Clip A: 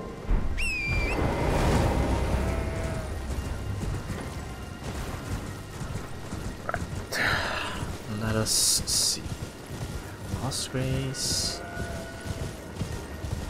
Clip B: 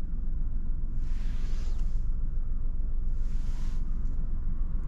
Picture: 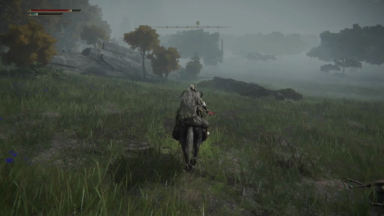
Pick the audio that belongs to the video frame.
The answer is A